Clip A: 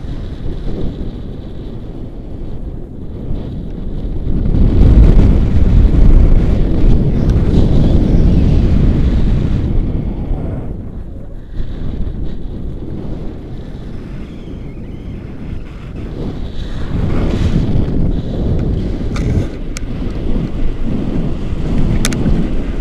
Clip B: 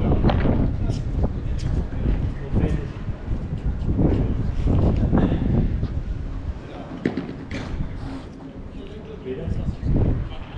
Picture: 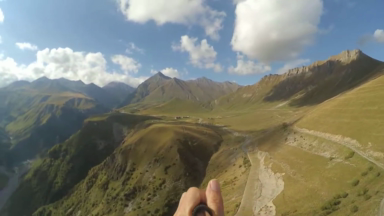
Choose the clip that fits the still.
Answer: A